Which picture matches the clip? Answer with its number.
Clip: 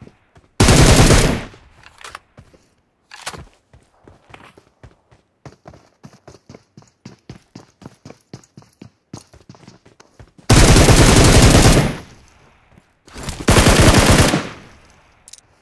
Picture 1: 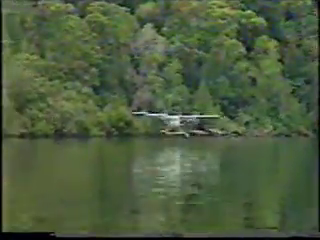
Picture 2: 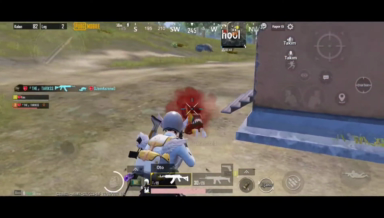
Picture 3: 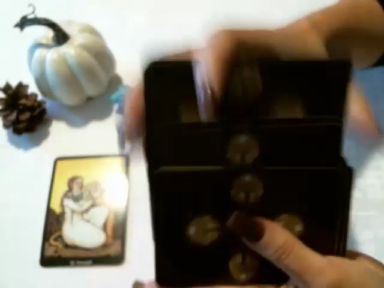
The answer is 2